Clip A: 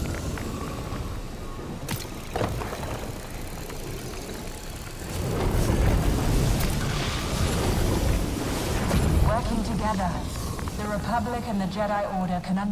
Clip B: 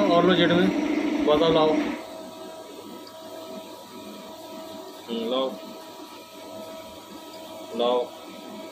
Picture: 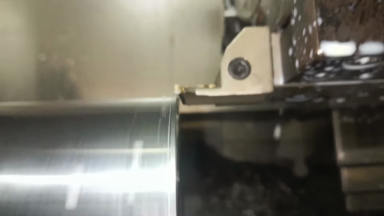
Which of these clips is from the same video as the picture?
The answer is B